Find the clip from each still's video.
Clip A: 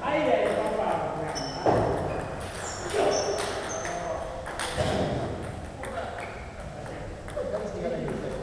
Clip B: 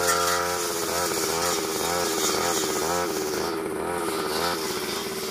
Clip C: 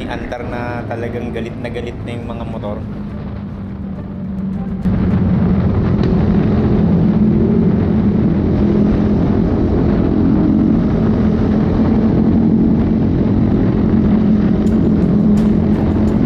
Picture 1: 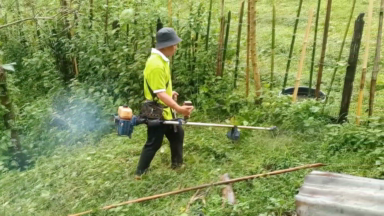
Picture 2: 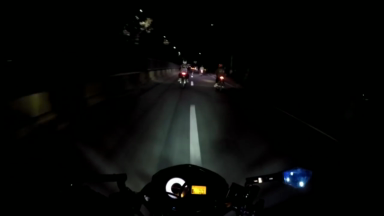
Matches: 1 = B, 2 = C